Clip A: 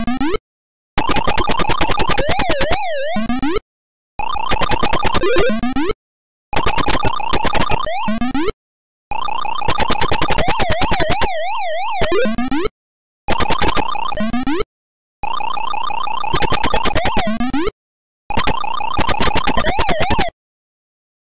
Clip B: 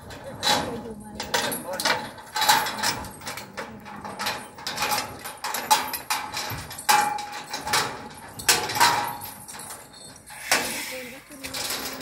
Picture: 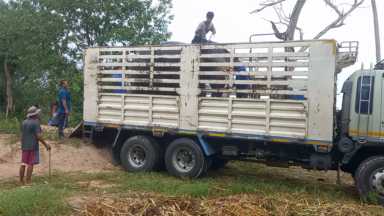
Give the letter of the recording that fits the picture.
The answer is B